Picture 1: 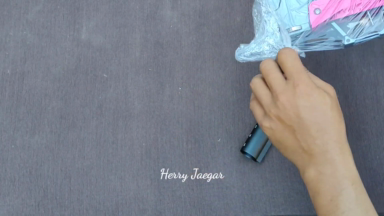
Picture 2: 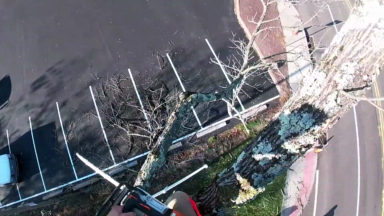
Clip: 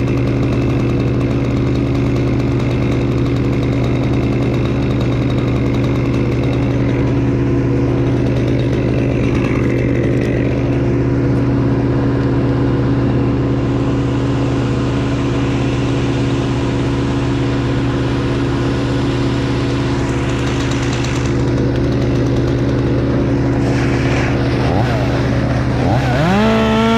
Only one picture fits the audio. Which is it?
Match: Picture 2